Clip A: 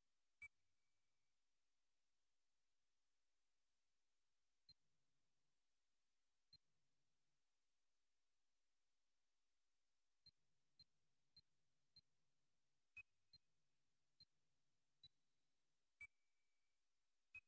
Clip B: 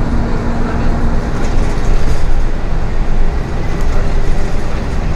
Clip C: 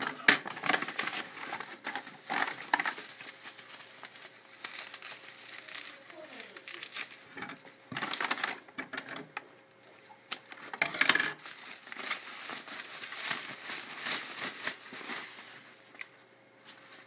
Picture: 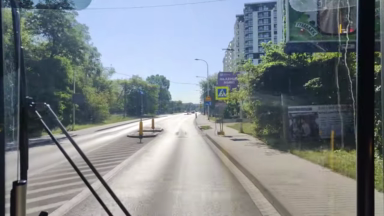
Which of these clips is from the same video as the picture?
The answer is B